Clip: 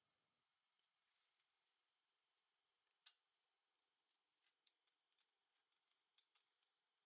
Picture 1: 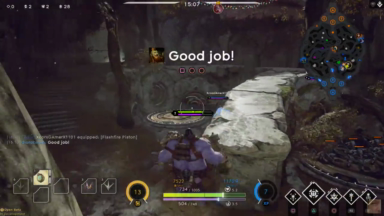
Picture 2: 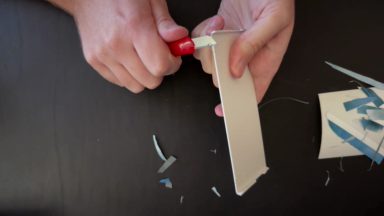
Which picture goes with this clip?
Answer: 2